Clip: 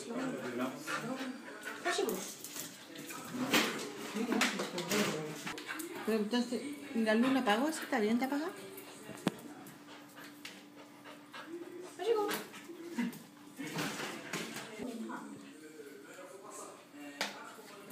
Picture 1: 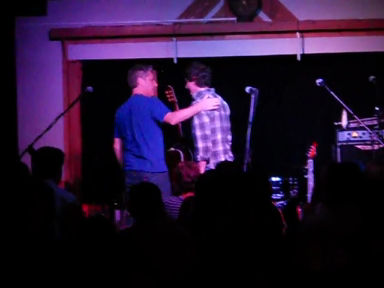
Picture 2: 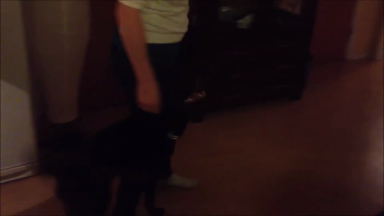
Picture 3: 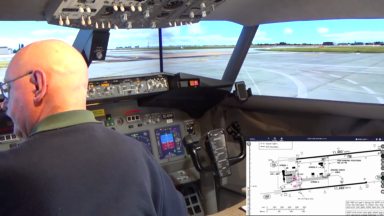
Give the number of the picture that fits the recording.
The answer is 2